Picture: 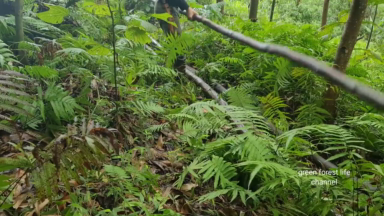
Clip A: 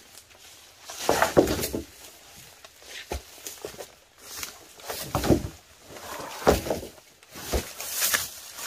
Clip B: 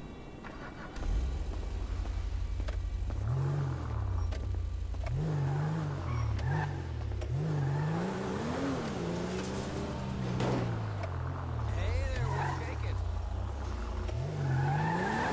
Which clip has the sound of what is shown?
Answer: A